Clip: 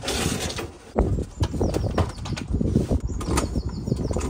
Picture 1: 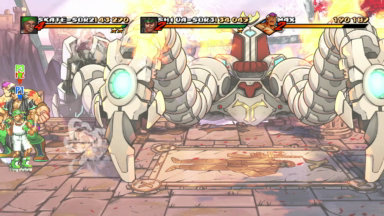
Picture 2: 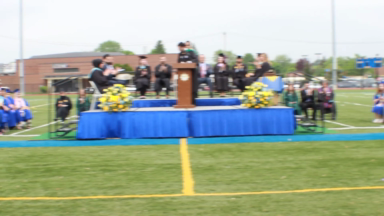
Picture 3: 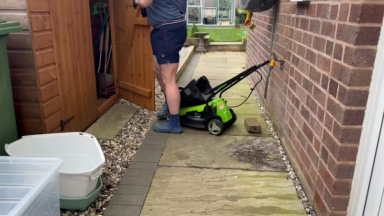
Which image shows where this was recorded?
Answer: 3